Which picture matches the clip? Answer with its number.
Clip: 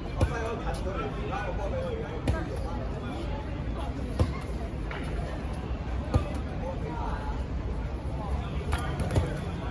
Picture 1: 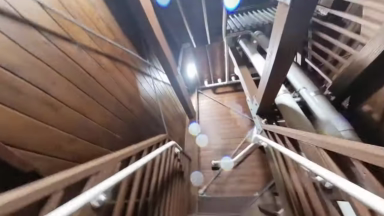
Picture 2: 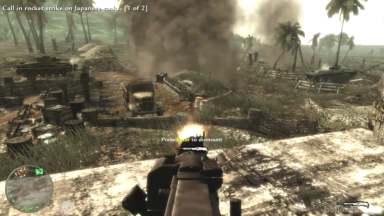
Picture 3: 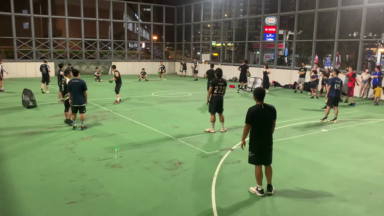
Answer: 3